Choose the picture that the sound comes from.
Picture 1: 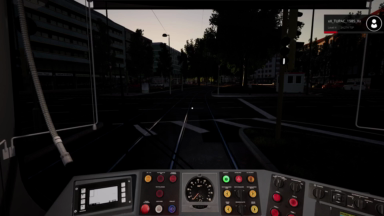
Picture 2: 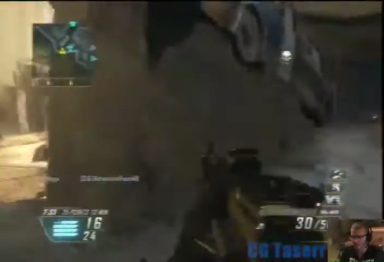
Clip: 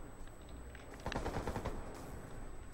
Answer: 2